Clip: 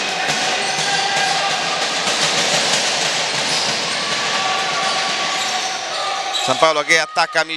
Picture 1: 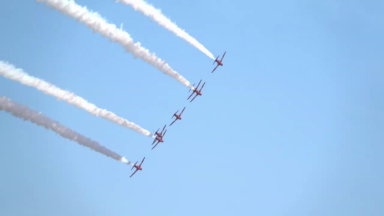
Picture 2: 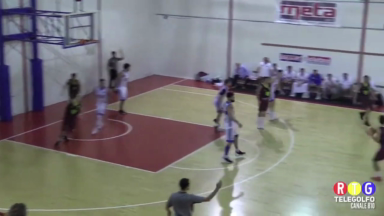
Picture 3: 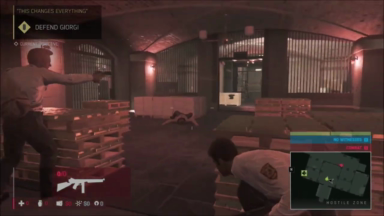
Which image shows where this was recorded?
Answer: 2